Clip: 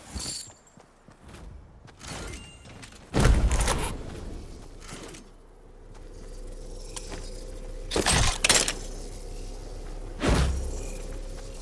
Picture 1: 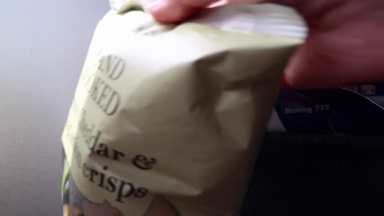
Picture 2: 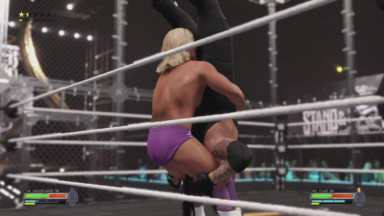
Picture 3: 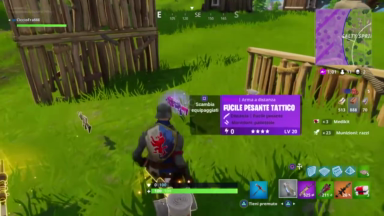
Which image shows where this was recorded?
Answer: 3